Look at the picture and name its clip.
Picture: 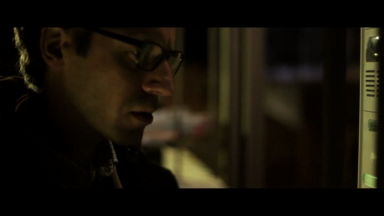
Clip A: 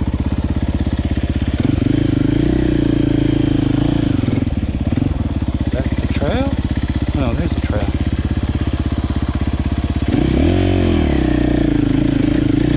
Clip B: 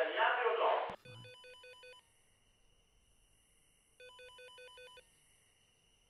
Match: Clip B